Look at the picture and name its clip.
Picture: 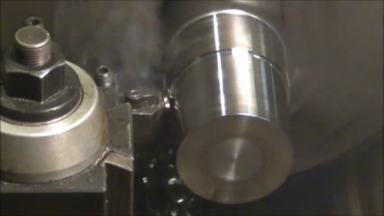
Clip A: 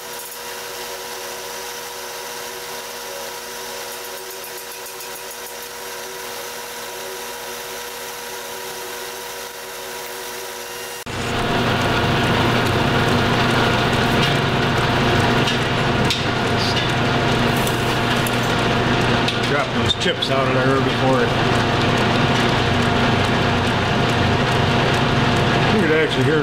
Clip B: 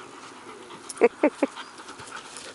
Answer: A